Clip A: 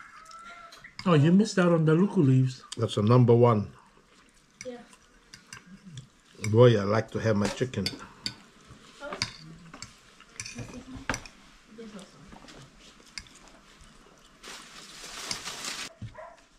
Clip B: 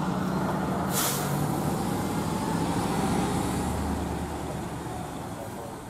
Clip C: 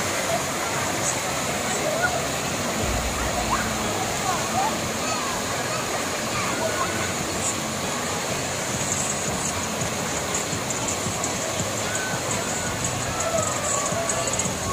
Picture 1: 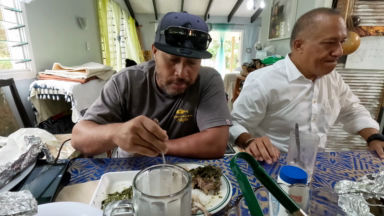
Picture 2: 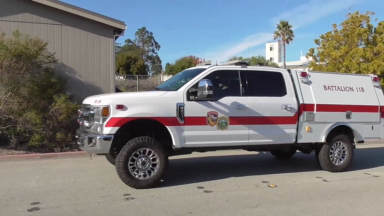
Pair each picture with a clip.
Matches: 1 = A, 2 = B